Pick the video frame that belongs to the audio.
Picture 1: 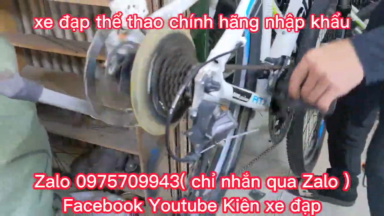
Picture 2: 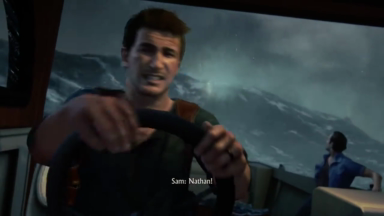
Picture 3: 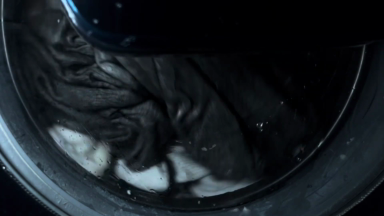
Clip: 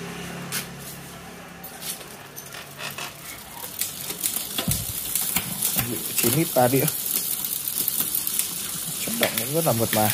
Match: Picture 1